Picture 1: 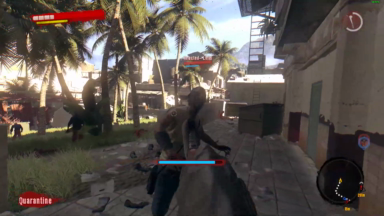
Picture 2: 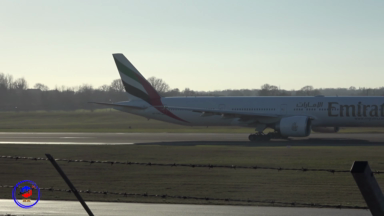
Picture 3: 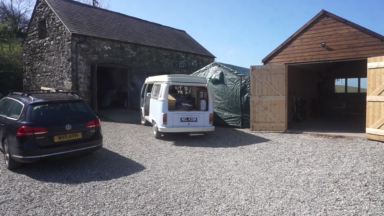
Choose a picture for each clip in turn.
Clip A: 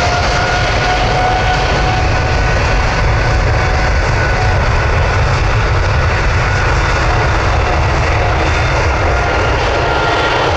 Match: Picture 2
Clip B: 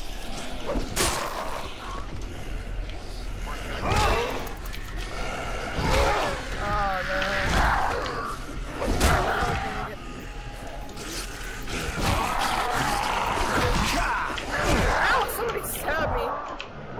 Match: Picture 1